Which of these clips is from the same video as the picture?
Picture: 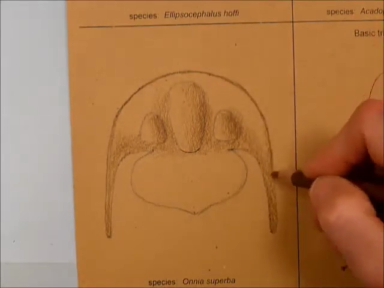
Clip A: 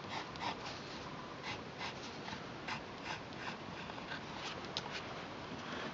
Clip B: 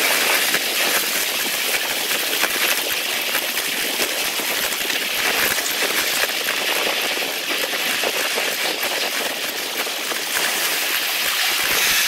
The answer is A